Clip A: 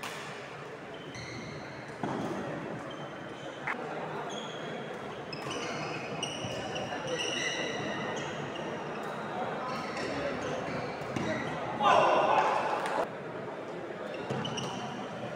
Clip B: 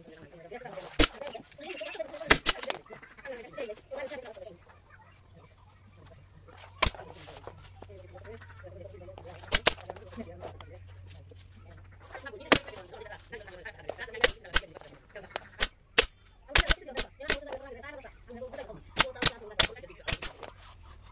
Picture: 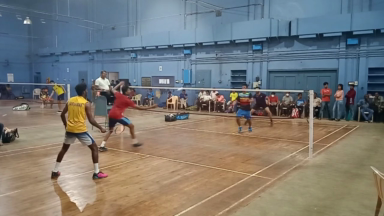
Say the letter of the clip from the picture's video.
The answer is A